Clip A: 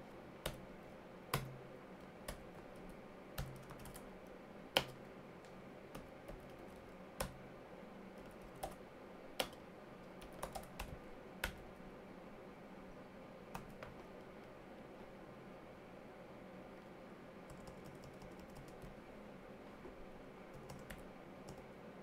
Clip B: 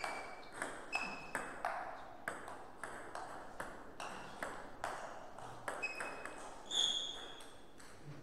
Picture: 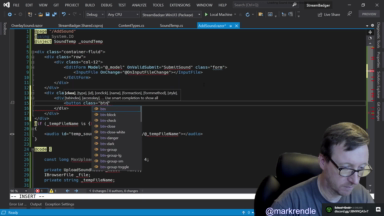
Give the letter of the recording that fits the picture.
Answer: A